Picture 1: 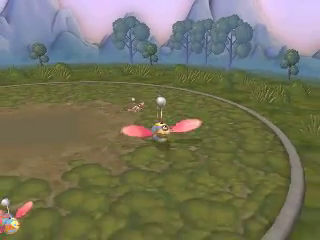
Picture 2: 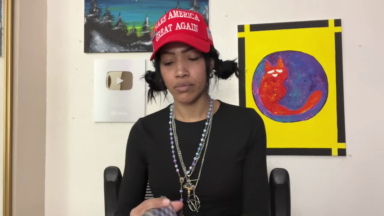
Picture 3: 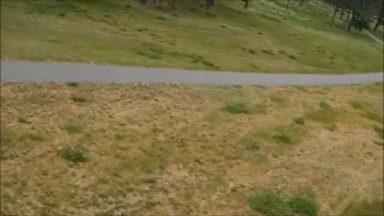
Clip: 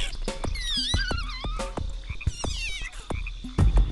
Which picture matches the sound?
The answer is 1